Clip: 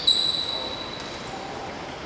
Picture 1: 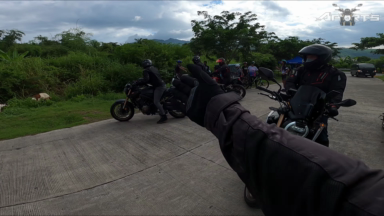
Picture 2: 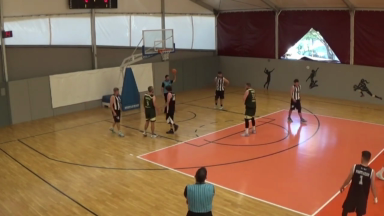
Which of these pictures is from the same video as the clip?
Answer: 2